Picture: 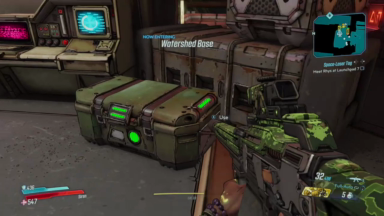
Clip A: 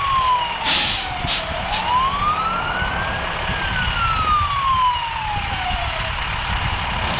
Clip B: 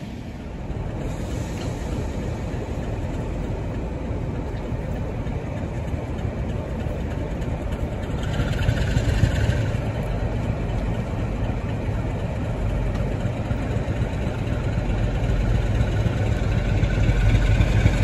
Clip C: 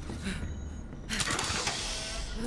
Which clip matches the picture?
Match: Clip C